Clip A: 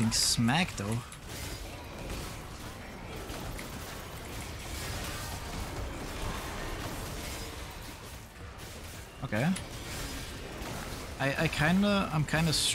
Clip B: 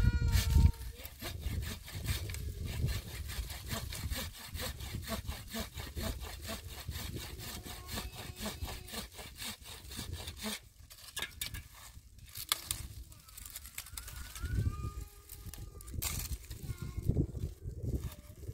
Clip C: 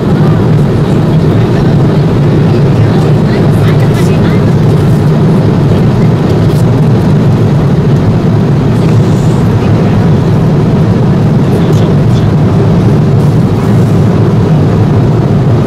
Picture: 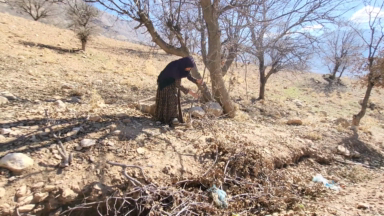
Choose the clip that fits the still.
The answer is B